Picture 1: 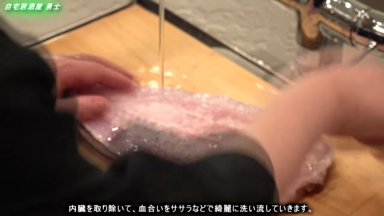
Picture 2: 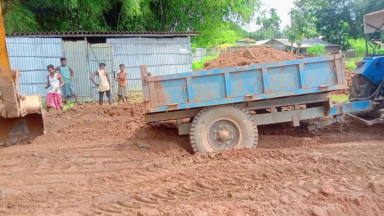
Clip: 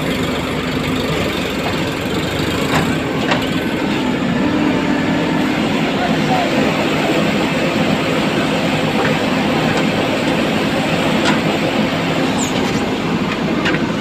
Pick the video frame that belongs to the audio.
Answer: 2